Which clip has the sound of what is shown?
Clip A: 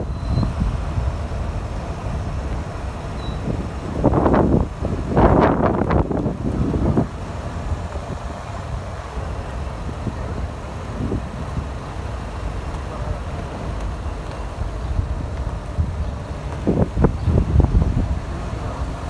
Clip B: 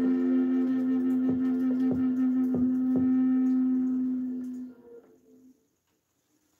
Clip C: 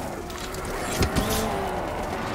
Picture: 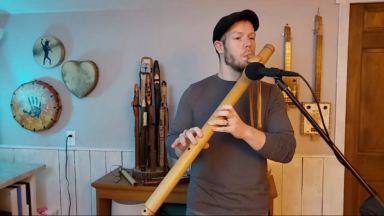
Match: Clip B